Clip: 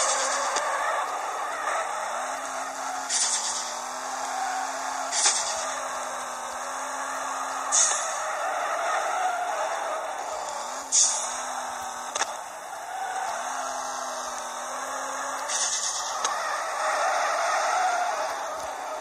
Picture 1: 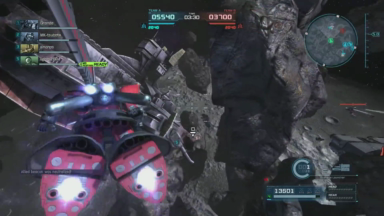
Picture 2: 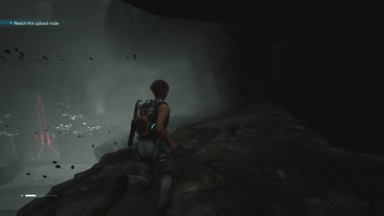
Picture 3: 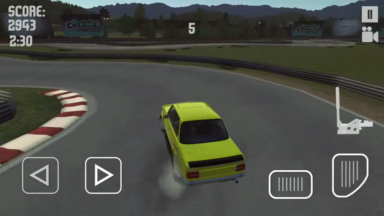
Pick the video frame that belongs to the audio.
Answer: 3